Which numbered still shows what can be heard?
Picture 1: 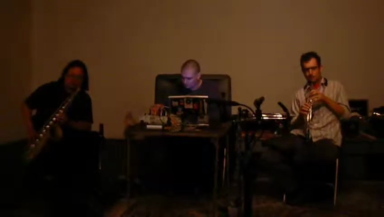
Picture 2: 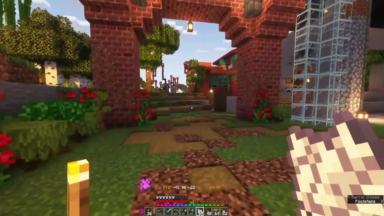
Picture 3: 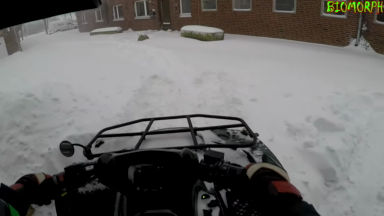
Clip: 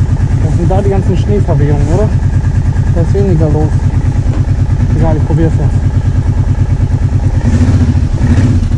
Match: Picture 3